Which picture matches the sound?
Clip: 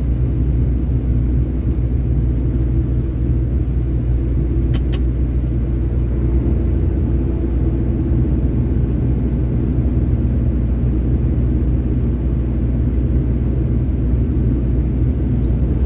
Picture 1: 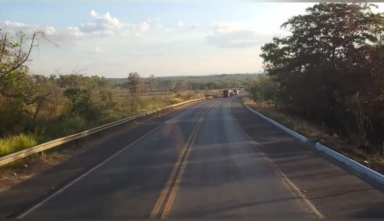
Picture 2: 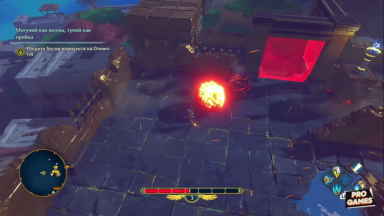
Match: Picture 1